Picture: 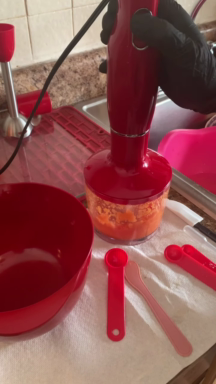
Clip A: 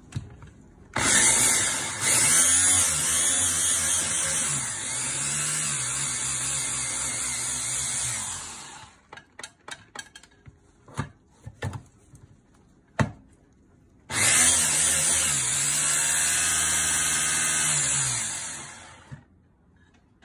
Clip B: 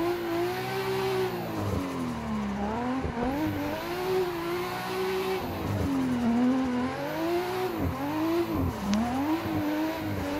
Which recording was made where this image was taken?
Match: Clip A